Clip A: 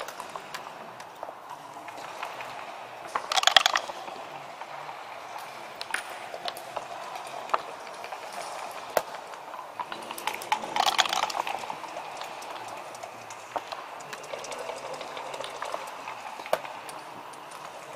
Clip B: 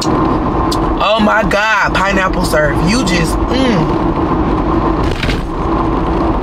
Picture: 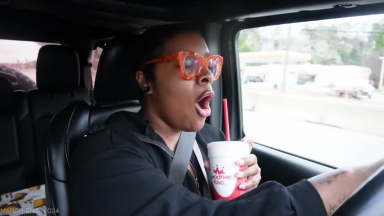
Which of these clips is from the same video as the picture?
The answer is B